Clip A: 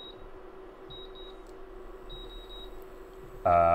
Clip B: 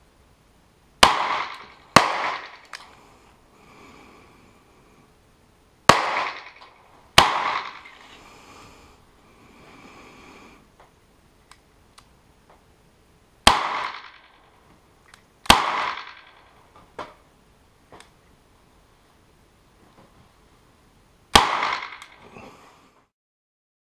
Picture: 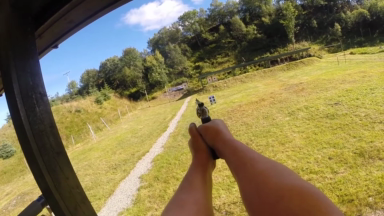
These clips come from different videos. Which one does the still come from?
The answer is B